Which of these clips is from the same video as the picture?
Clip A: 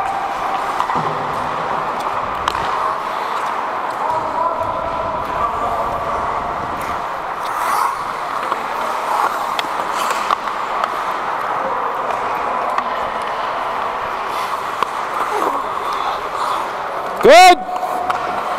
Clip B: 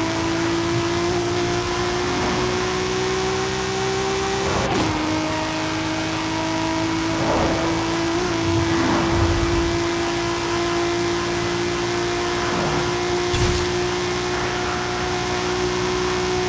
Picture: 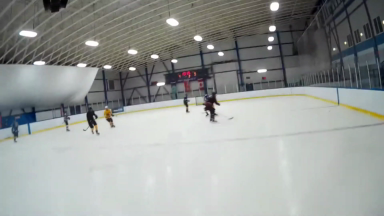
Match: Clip A